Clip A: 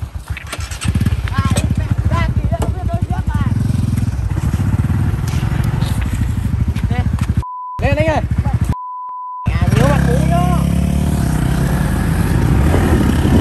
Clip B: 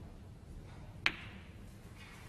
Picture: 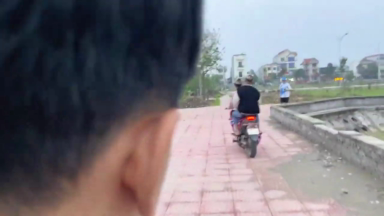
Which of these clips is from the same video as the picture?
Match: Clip A